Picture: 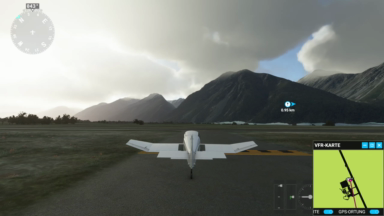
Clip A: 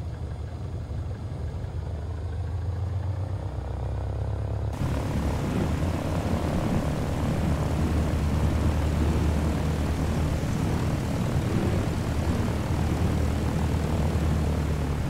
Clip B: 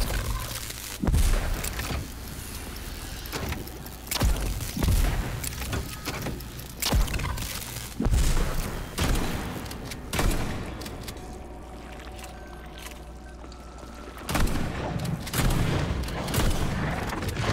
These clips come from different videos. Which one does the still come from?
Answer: A